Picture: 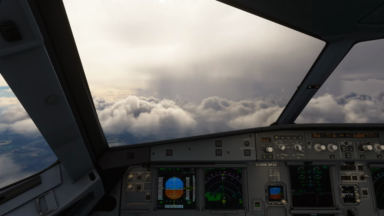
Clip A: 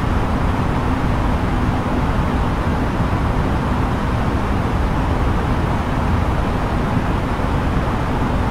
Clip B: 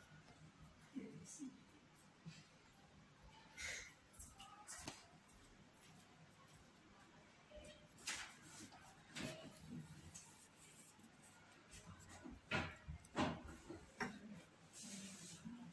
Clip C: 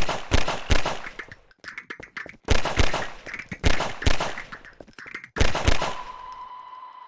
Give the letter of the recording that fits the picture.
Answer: A